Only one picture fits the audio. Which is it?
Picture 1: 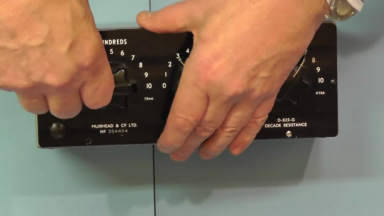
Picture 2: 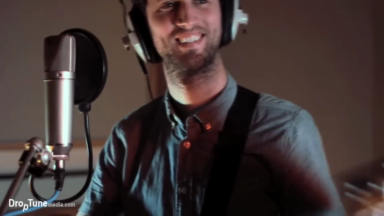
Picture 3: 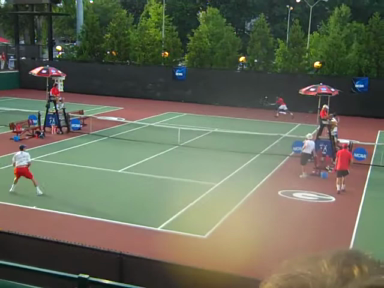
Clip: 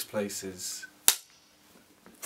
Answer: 2